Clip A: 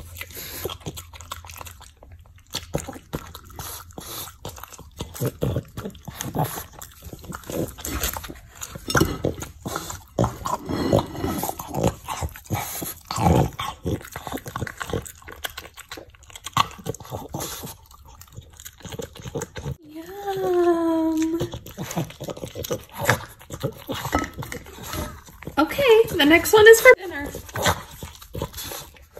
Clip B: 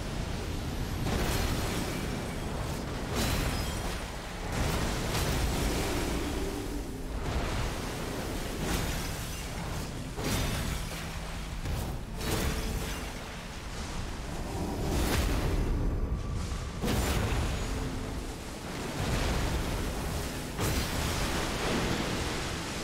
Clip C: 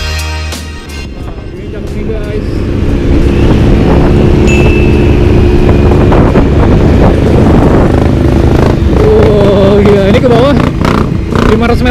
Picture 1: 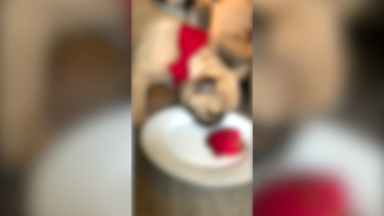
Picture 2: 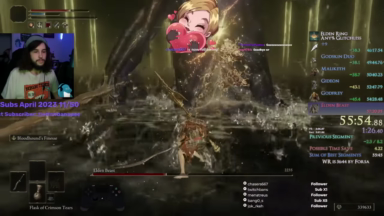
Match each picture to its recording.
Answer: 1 A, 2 B